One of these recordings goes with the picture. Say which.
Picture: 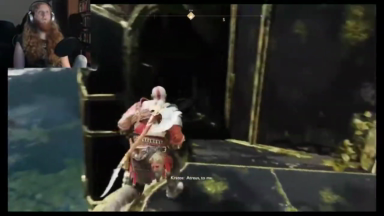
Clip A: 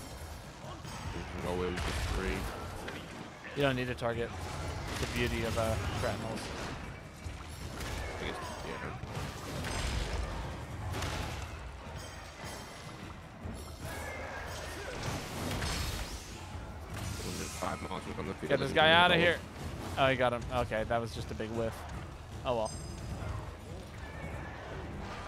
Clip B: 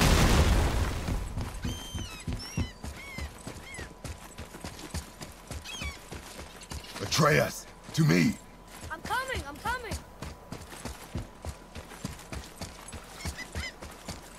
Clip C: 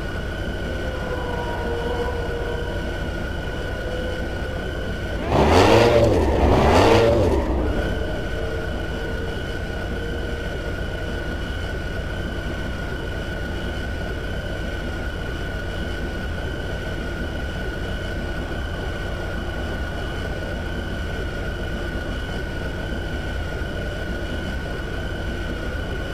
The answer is B